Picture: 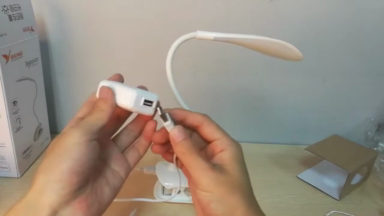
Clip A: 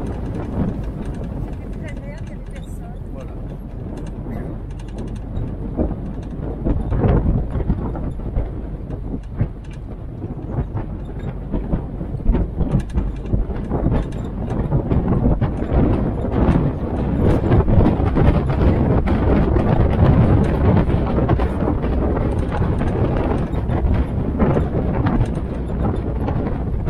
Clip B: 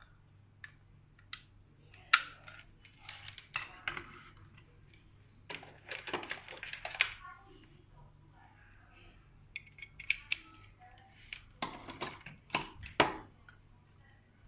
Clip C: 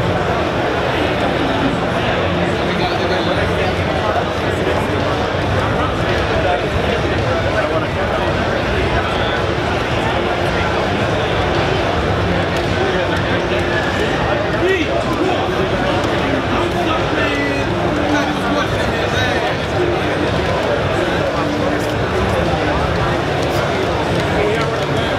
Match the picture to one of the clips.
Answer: B